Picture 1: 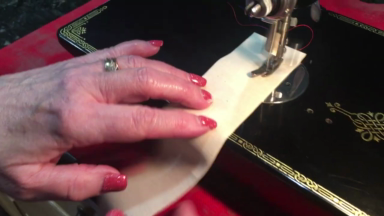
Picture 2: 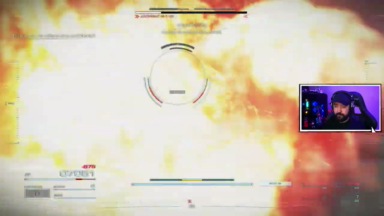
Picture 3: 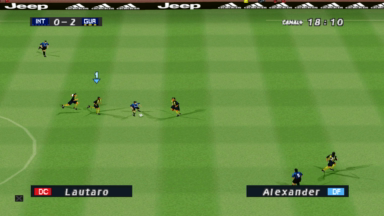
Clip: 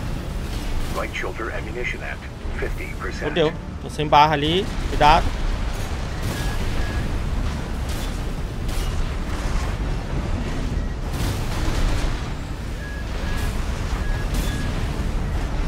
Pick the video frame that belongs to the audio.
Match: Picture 2